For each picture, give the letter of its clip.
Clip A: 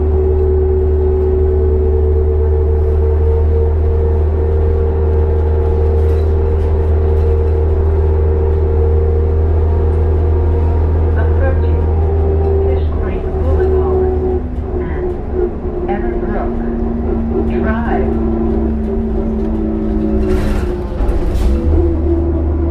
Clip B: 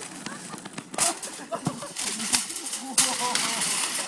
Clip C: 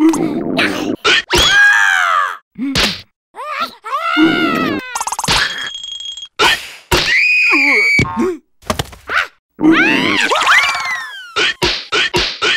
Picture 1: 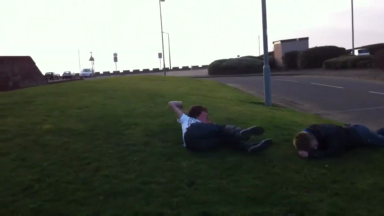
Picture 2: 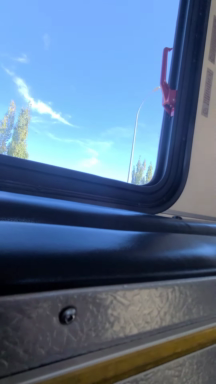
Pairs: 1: B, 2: A